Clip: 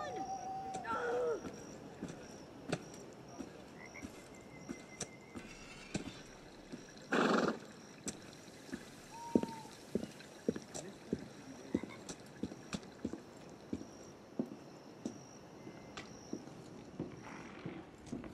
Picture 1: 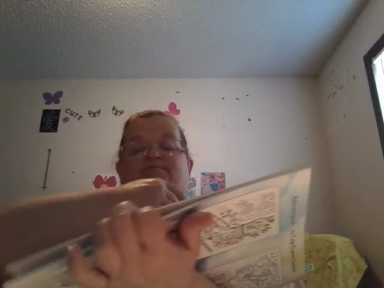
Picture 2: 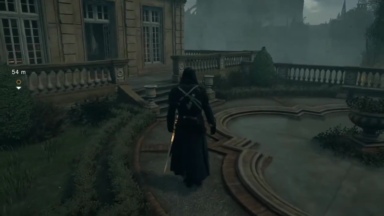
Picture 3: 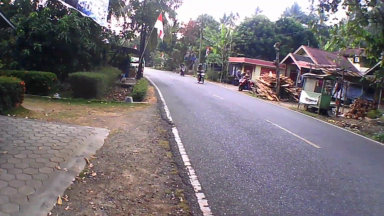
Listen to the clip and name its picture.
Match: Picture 2